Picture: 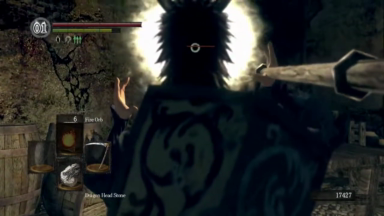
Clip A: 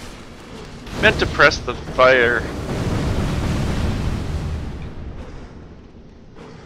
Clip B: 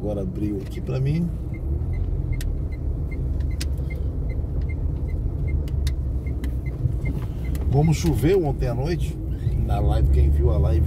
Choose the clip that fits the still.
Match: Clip A